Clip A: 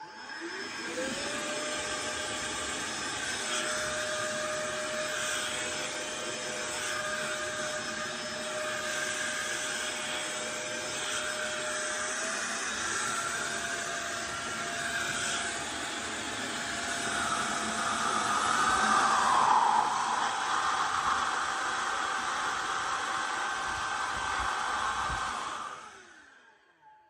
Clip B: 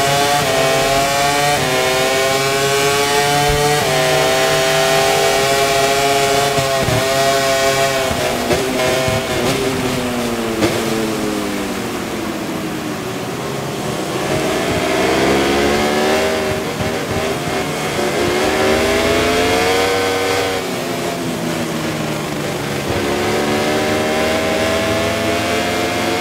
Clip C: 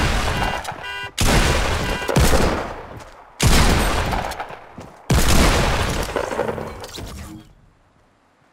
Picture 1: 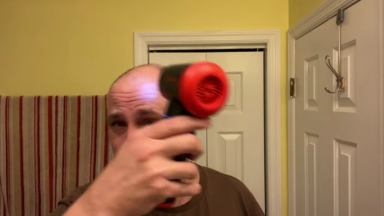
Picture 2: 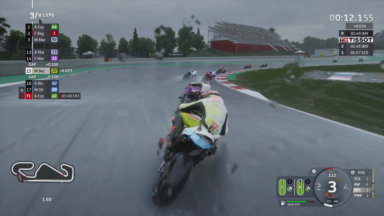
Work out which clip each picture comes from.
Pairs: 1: A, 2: B